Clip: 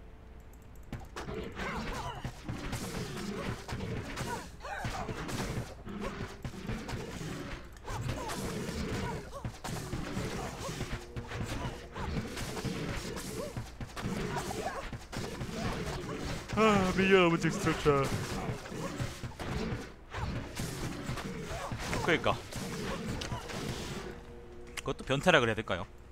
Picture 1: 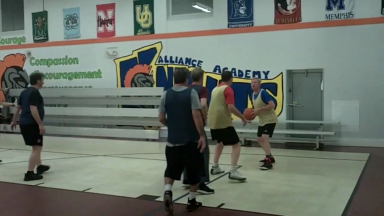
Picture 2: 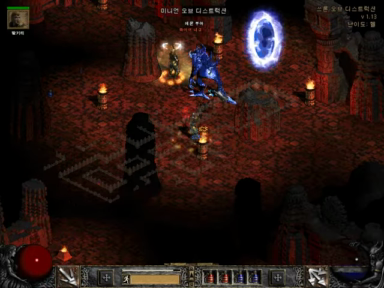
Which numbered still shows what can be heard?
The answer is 2